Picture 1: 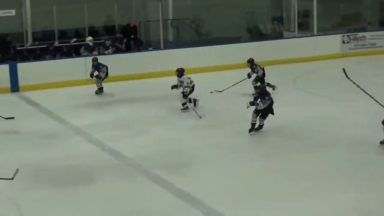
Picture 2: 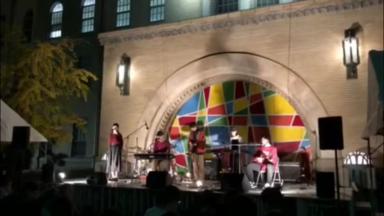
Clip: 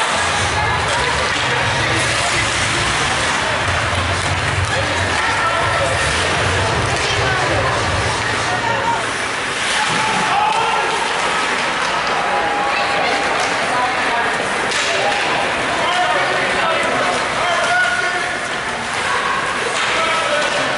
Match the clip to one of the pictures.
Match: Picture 1